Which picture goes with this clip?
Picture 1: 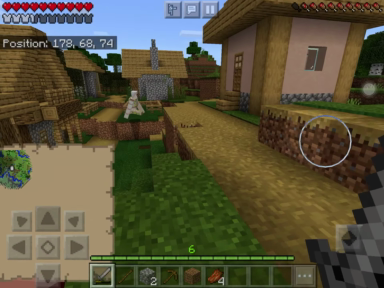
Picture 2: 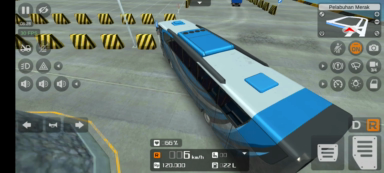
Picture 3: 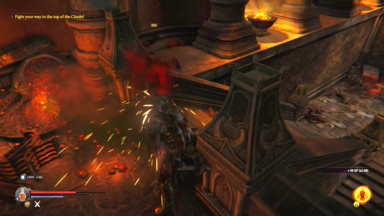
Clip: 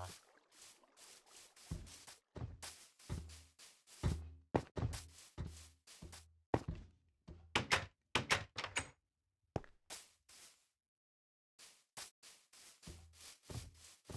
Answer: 1